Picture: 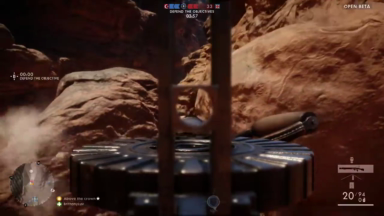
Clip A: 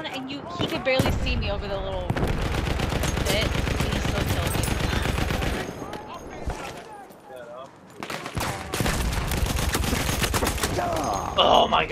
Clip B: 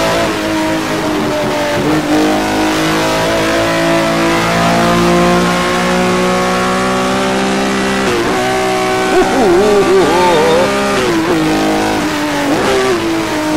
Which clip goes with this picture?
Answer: A